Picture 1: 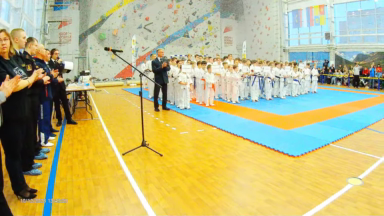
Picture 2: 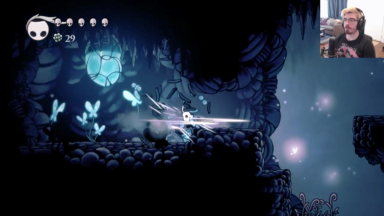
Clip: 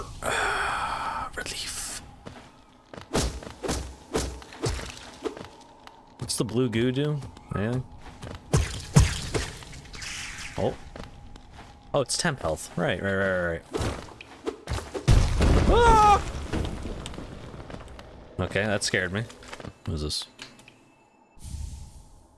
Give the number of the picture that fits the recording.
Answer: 2